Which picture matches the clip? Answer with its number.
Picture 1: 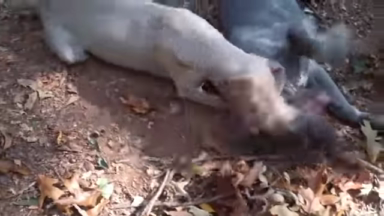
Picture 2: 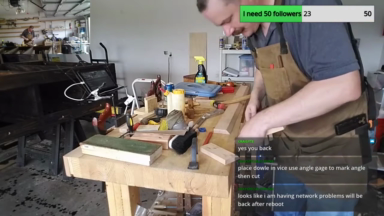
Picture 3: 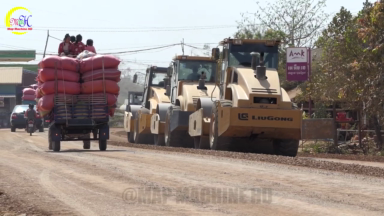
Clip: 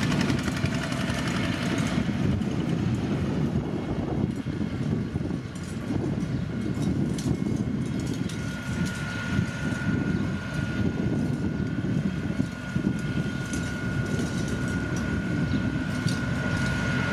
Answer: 3